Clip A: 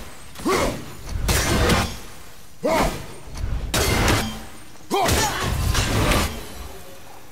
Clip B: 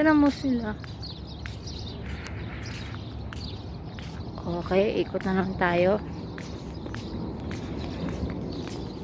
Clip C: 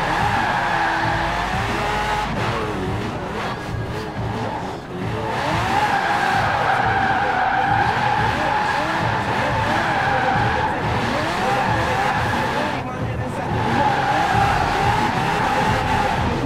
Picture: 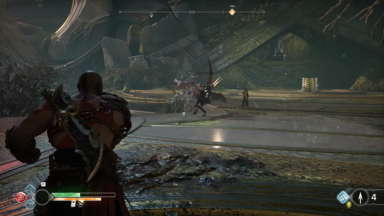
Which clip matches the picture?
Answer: A